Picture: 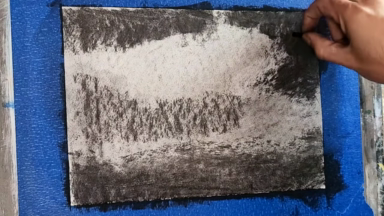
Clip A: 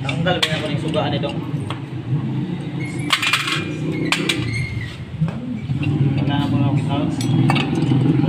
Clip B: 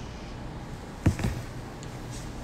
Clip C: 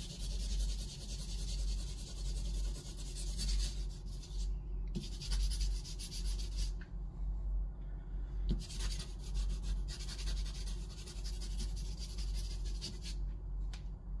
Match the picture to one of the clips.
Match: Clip C